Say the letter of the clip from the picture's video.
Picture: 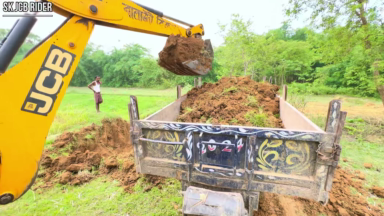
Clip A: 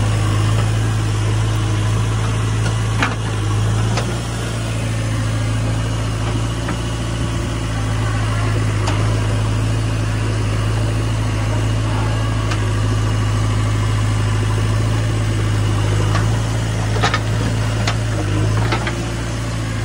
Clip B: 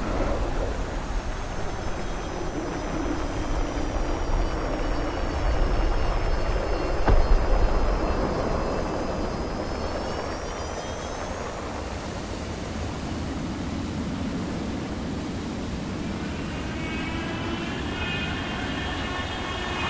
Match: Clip A